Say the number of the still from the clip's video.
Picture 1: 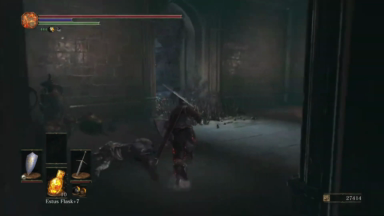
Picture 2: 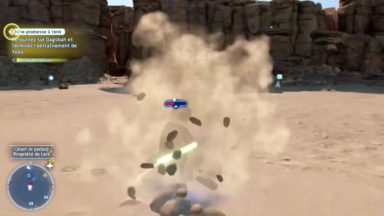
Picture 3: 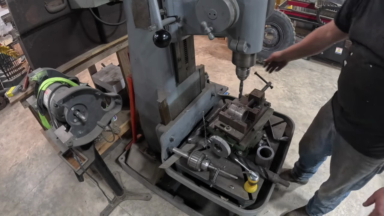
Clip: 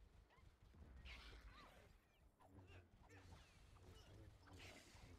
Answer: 2